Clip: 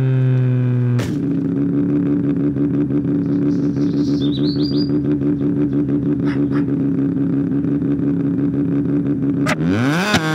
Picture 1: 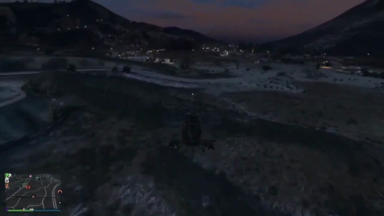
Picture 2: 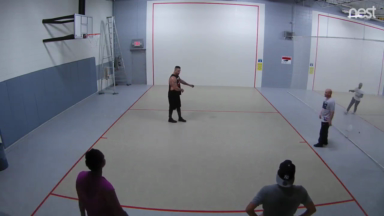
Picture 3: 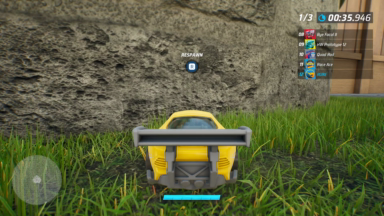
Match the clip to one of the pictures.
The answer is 3